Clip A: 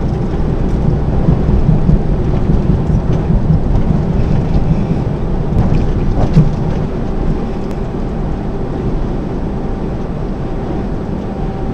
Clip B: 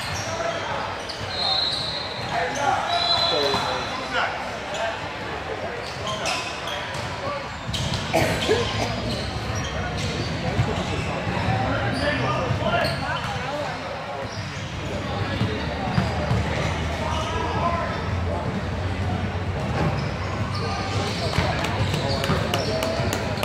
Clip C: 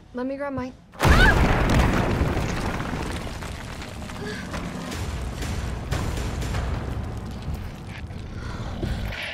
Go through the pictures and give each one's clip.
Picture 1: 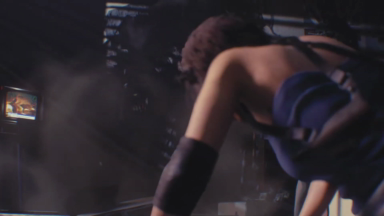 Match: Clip C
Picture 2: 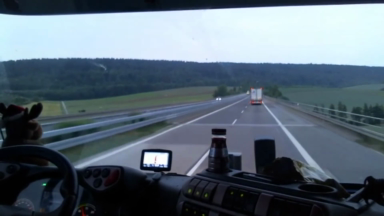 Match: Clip A